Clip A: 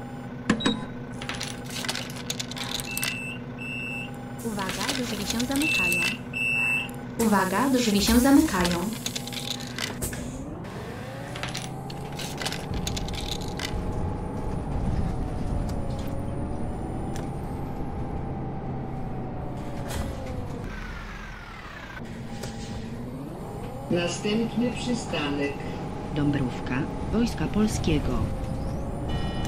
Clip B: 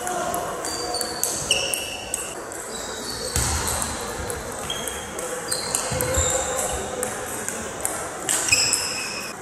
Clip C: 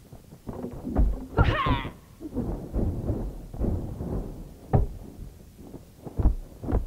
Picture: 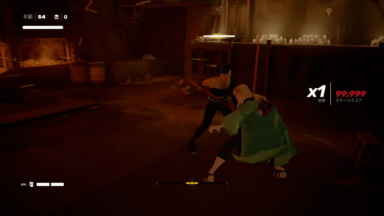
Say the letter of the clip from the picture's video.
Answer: C